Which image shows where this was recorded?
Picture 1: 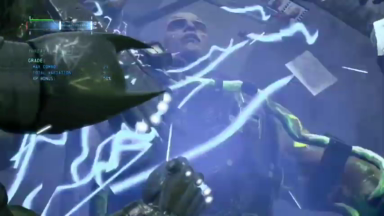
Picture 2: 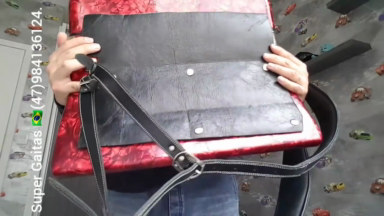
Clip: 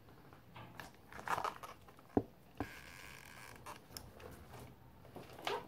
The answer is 2